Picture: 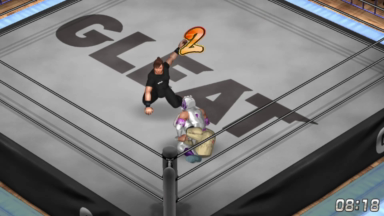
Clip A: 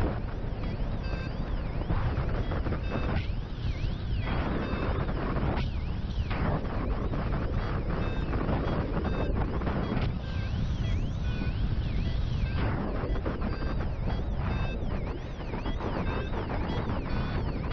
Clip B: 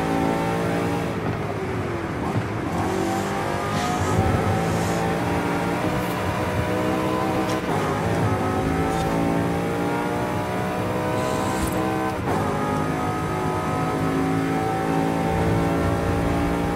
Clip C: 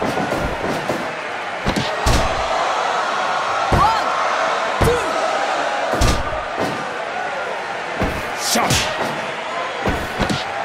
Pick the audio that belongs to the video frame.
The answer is C